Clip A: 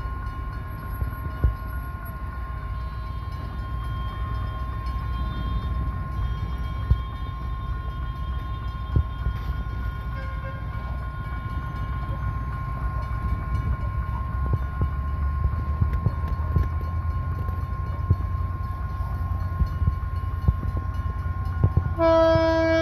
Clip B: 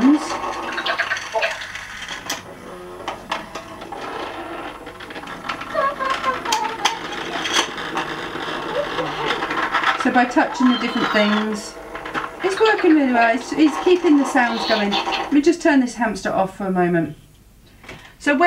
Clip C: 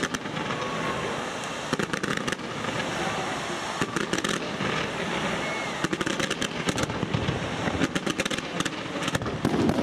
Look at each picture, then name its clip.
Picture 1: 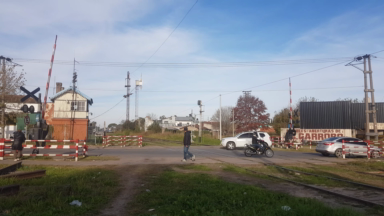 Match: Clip A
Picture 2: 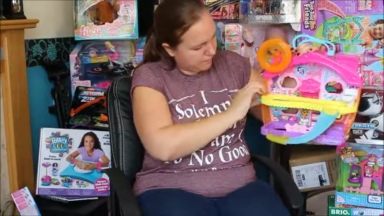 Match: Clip B